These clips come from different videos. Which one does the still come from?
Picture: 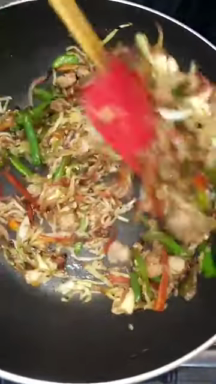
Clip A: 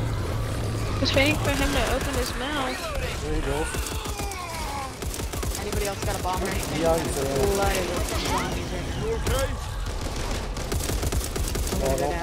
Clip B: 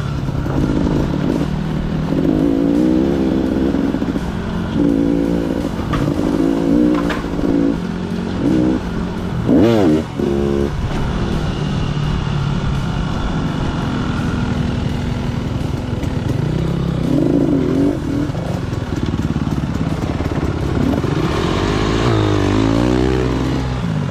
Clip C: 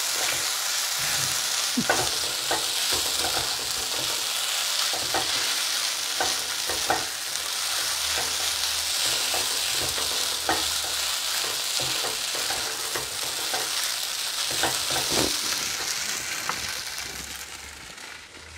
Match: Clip C